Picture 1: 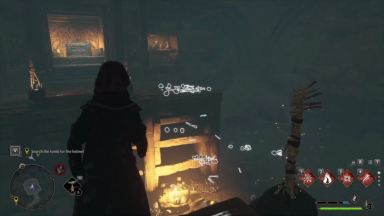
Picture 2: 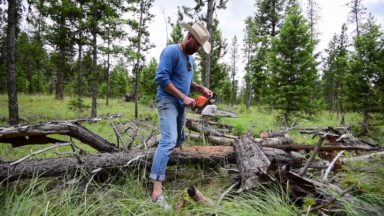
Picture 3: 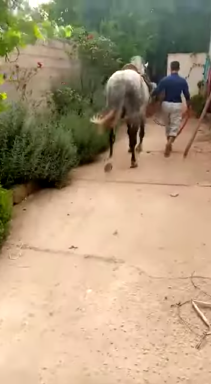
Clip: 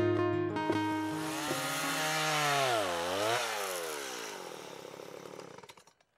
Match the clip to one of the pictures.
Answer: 2